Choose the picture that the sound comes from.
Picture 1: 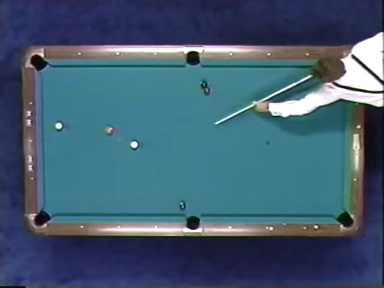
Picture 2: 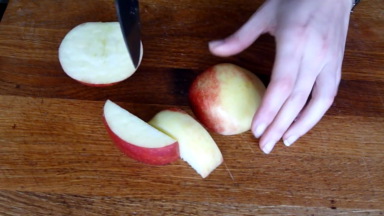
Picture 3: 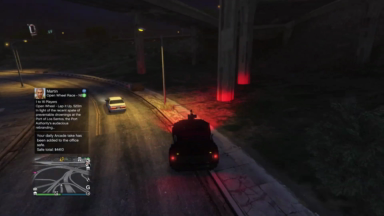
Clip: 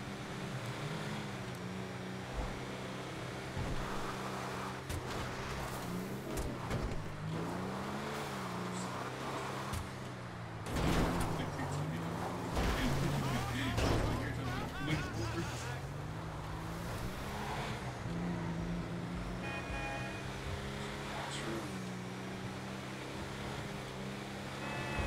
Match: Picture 3